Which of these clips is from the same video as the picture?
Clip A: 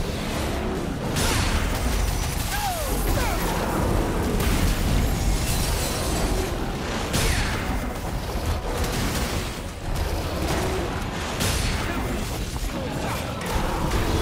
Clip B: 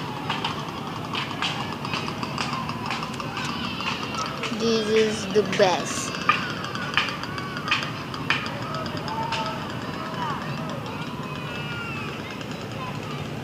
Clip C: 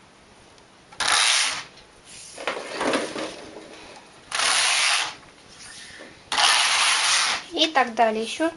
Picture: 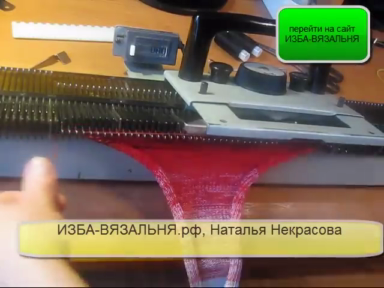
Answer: C